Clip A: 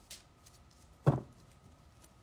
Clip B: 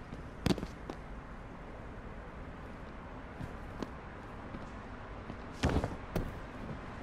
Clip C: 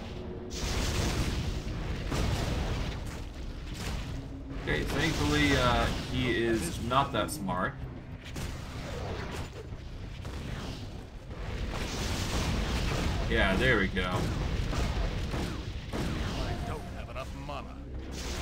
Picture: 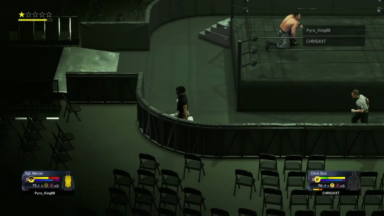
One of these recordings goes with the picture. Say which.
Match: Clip B